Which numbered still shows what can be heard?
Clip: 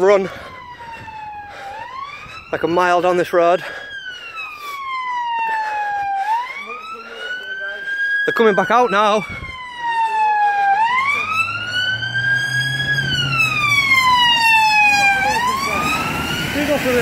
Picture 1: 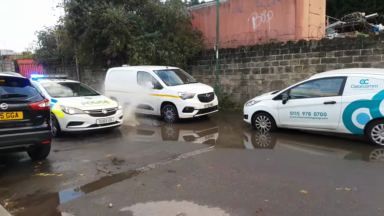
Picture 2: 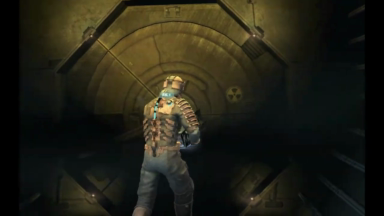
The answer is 1